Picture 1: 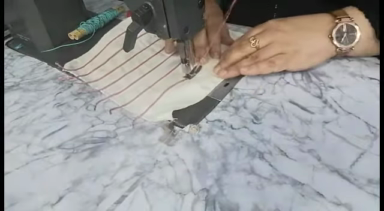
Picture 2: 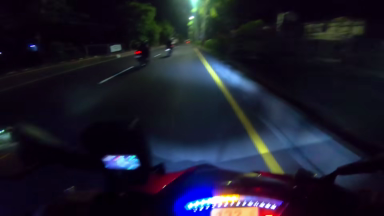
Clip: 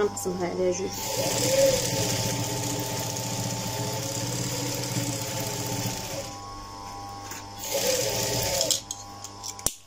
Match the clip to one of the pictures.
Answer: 1